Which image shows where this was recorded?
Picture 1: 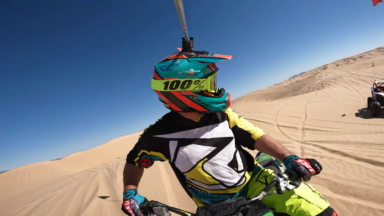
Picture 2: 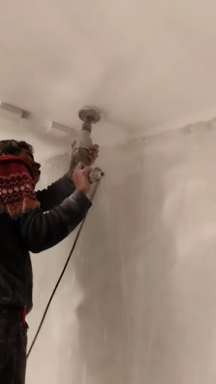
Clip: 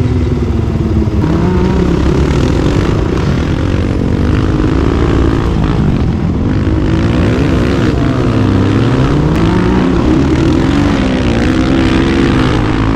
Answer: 1